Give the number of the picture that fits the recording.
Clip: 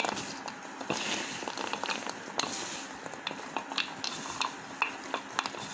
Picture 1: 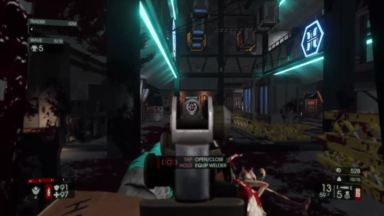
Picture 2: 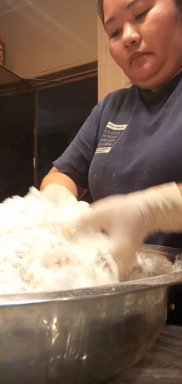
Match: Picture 2